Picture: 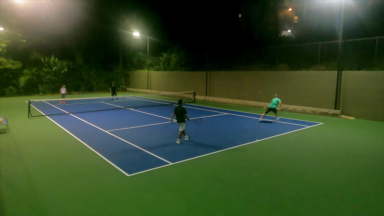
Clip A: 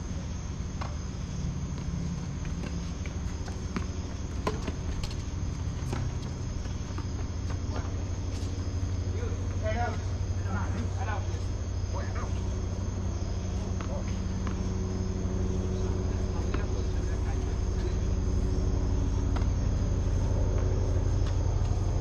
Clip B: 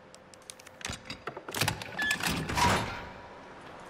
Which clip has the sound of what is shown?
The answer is A